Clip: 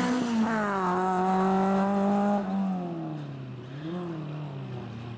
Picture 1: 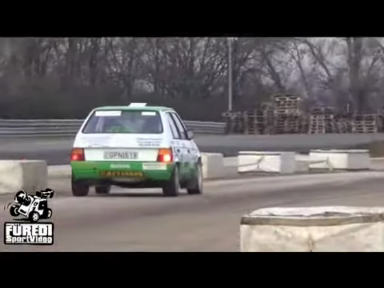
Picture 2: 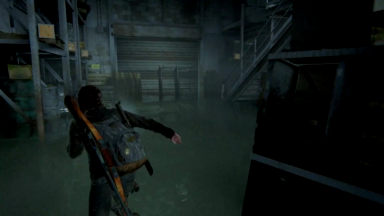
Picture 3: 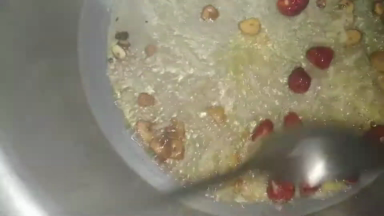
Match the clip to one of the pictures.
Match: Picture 1